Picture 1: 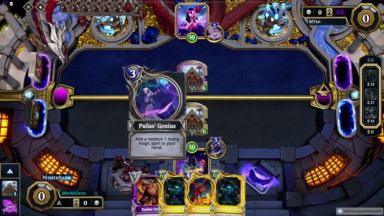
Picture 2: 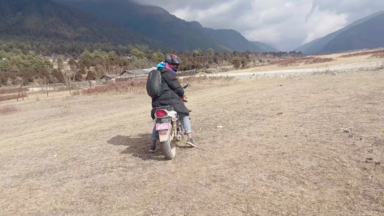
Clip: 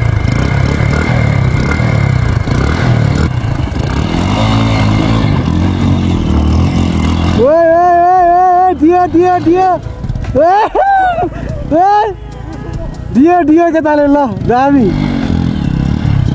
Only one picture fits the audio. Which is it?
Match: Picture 2